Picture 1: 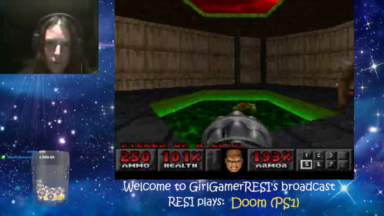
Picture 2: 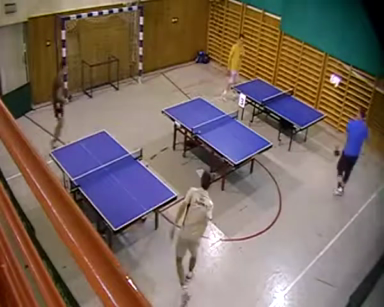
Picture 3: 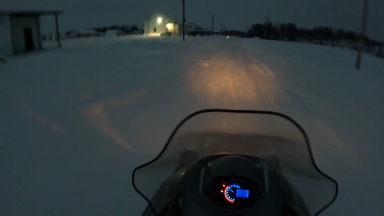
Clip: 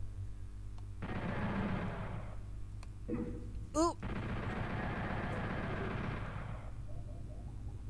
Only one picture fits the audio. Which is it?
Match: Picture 1